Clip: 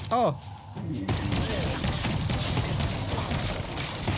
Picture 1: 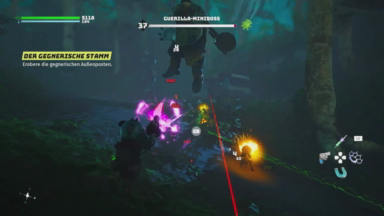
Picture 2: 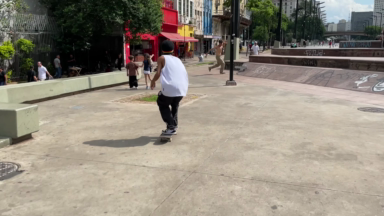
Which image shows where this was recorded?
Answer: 1